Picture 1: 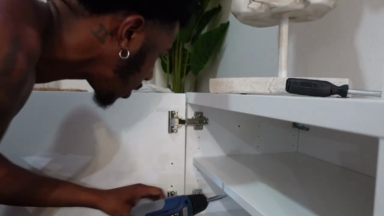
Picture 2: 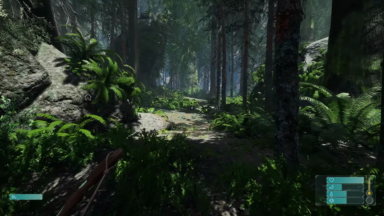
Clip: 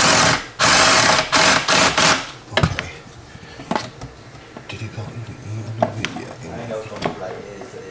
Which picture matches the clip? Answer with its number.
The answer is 1